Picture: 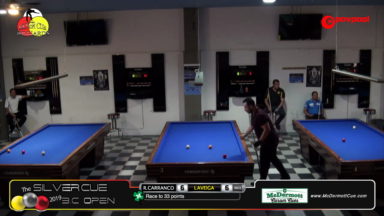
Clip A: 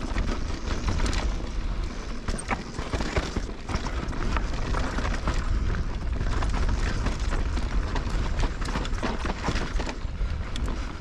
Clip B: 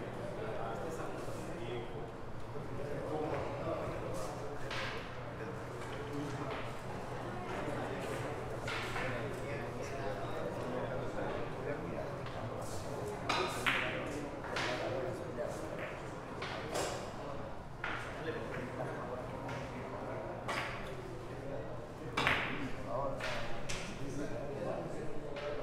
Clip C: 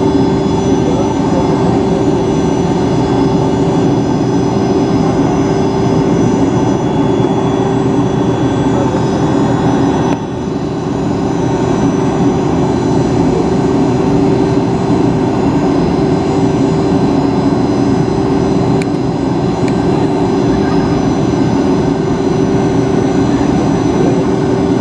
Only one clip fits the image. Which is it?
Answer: B